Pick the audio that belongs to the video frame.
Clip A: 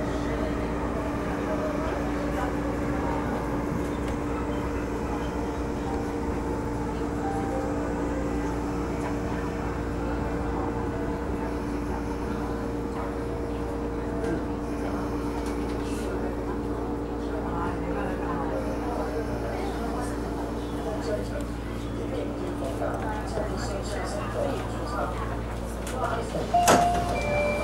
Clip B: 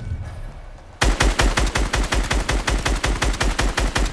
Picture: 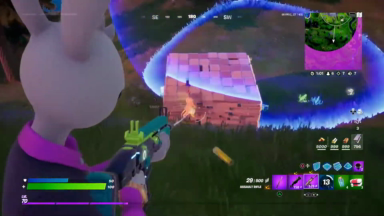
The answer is B